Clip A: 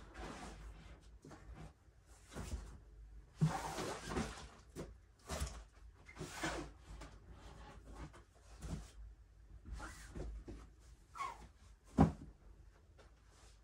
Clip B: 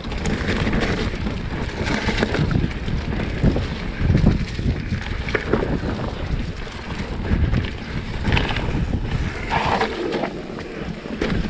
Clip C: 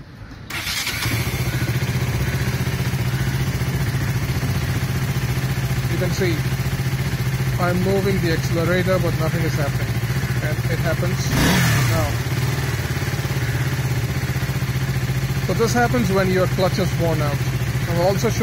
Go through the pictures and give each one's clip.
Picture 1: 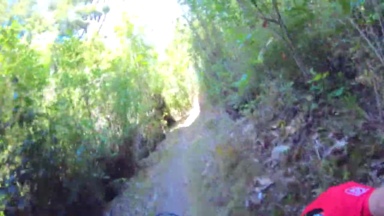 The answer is B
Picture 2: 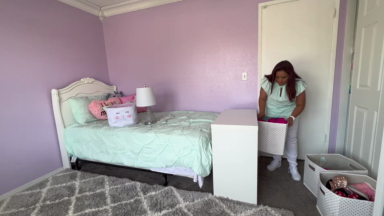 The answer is A